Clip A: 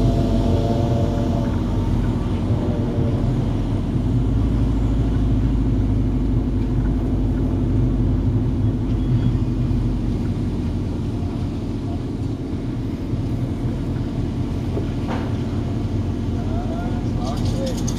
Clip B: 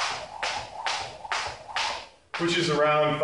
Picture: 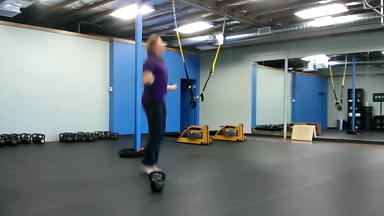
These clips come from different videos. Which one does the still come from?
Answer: B